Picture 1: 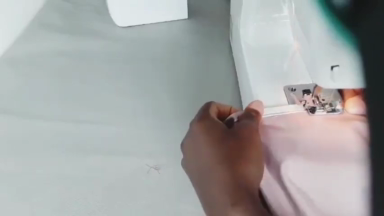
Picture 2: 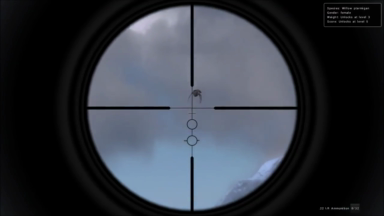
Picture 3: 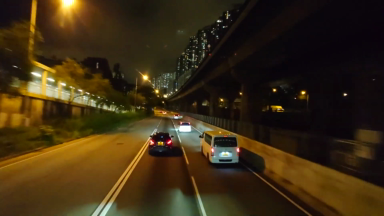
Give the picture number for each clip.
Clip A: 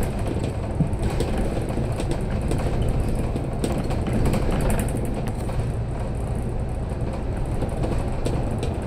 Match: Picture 3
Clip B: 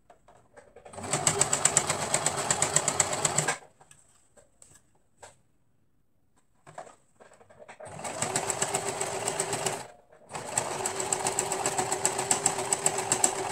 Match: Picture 1